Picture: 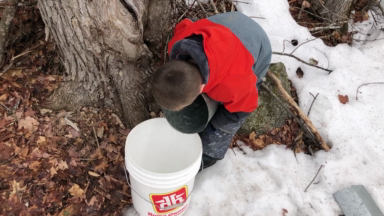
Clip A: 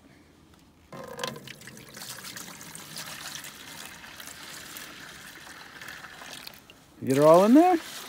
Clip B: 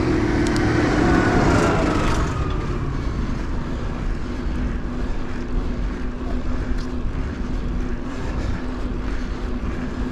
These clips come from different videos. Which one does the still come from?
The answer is A